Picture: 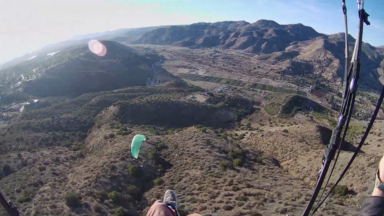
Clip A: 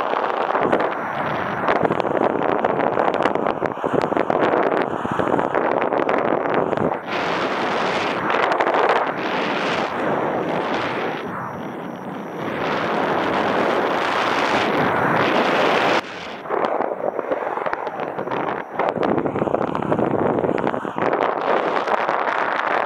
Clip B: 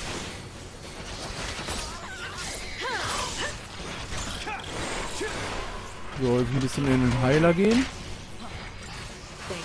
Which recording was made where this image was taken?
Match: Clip A